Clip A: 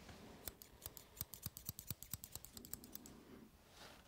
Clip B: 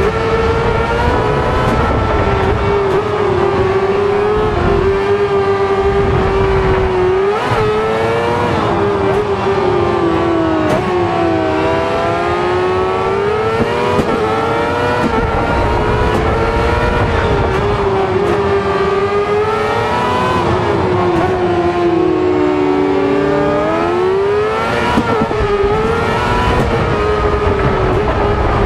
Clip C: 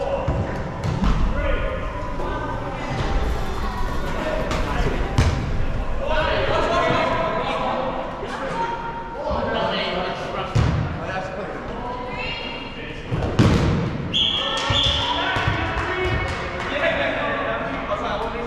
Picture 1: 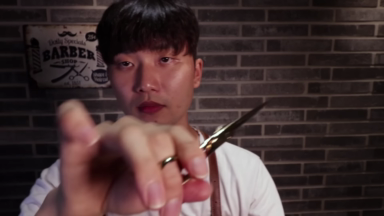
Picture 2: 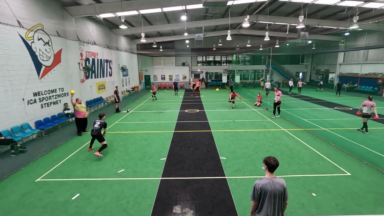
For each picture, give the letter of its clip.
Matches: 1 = A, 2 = C